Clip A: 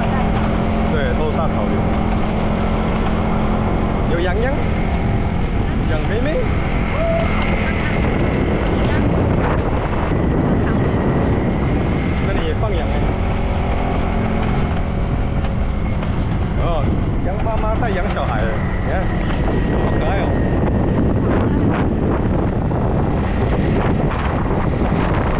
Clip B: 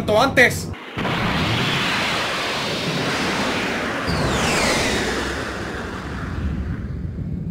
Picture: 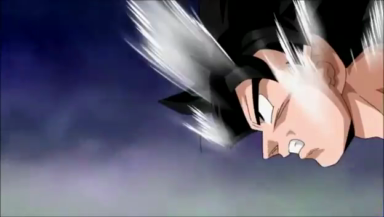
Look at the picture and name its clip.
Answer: B